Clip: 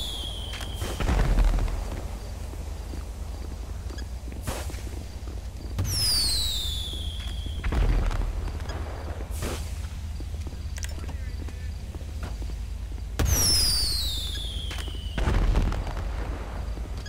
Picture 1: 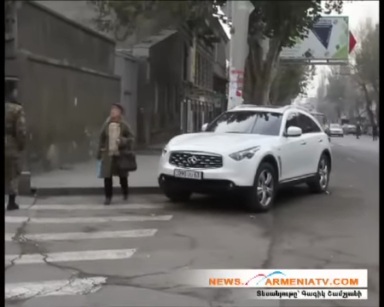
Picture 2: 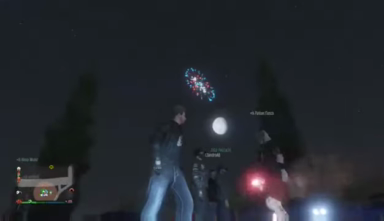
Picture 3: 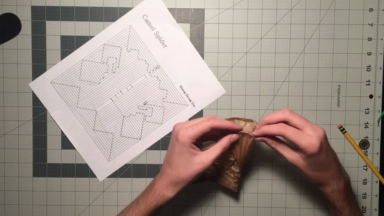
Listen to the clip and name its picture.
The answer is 2